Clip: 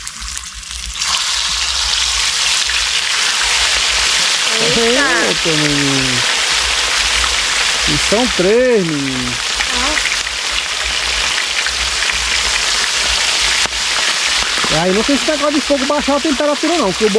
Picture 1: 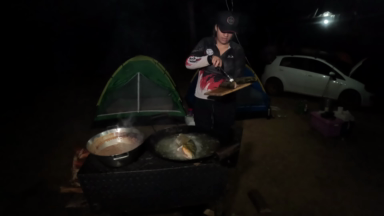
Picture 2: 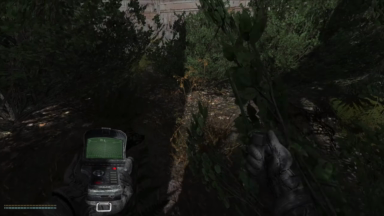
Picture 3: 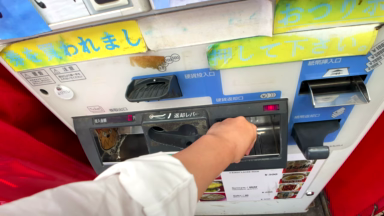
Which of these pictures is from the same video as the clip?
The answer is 1